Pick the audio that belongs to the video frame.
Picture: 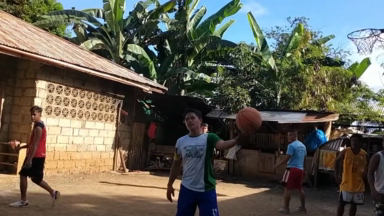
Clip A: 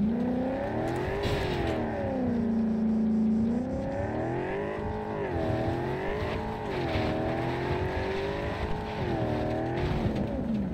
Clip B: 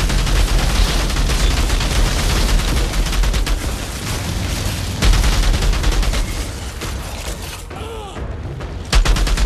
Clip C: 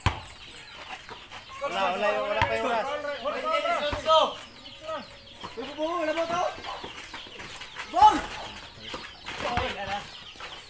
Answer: C